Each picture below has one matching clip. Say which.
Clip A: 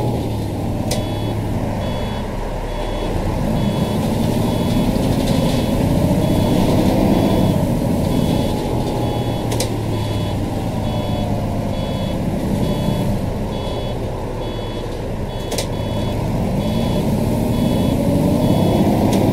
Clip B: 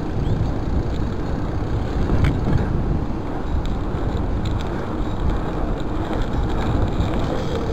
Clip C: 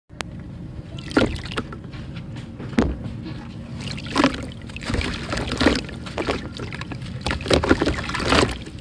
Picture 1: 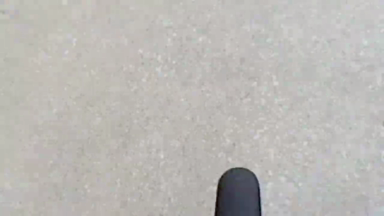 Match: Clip B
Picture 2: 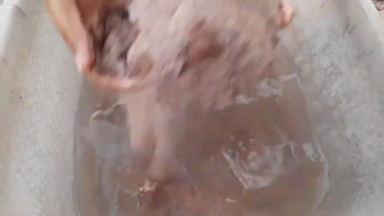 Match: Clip C